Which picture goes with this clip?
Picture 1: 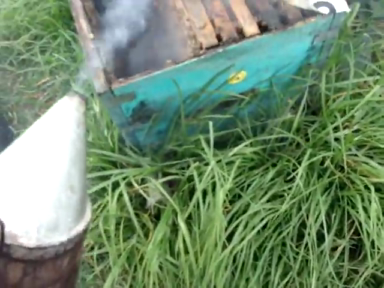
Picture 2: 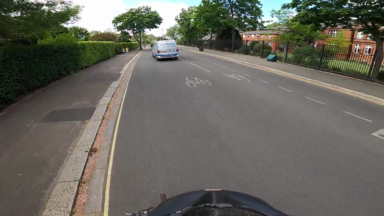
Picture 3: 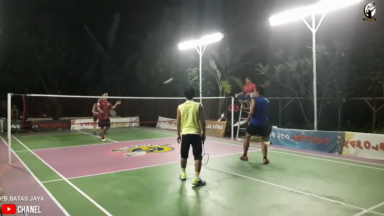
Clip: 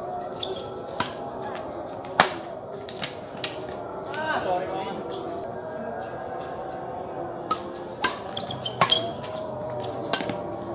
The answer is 3